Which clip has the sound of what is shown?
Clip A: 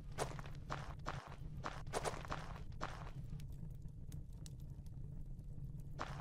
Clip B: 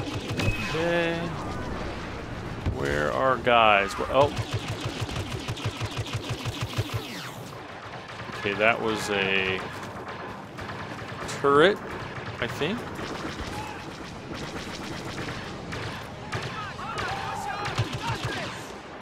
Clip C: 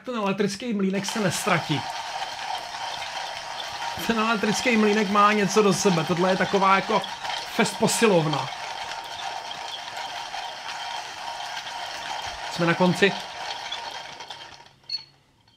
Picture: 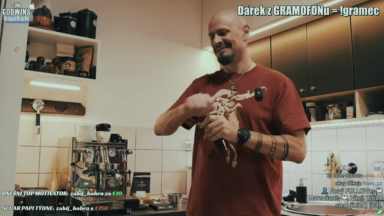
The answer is C